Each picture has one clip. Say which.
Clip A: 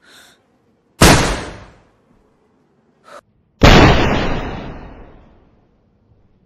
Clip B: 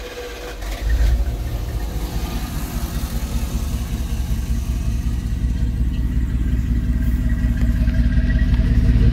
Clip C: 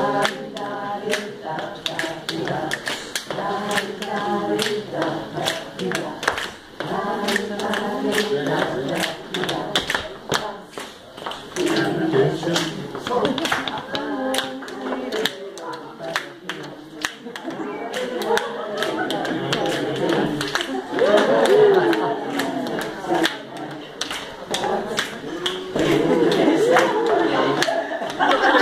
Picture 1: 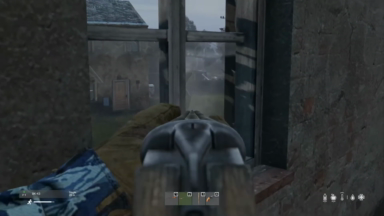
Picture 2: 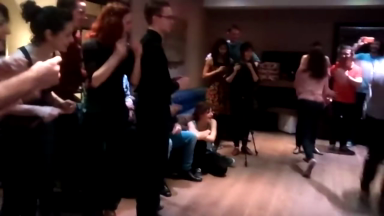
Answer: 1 A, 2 C